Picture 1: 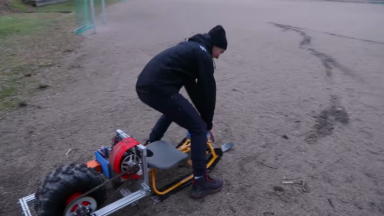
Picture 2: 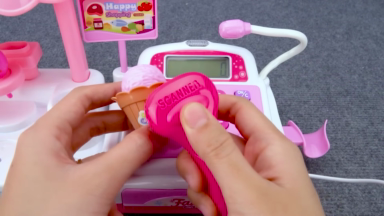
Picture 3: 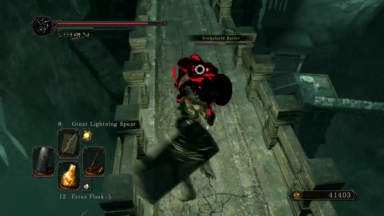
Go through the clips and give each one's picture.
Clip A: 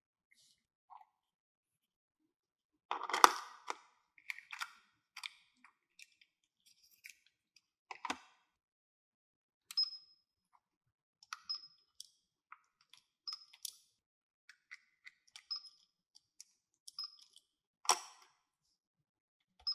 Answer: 2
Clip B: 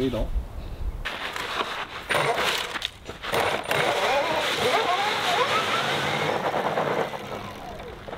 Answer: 1